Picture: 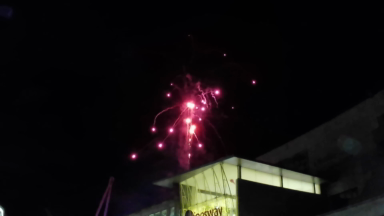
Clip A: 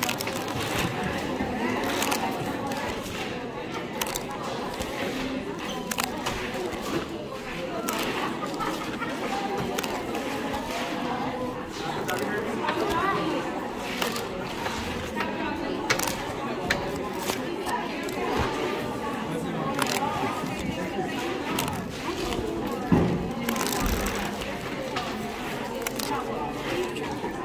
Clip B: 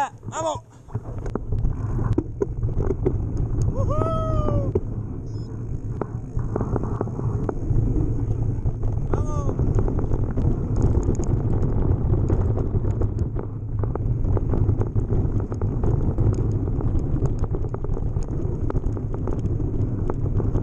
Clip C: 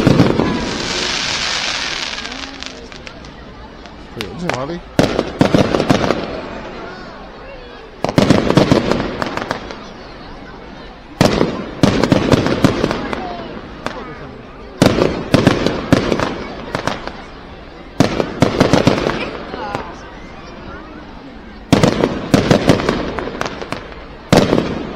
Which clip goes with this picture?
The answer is C